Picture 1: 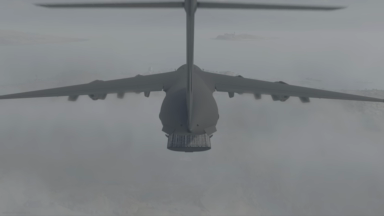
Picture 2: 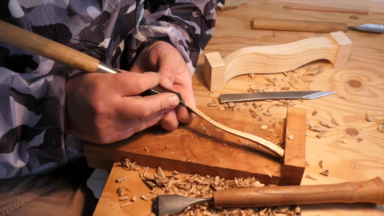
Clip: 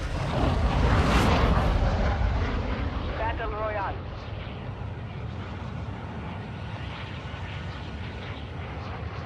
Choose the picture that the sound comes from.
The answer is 1